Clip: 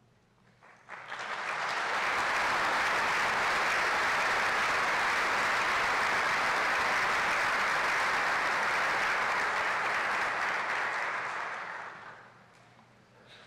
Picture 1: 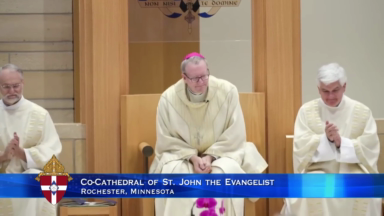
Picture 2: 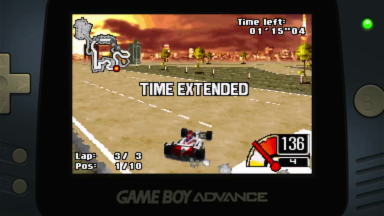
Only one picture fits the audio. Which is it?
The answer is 1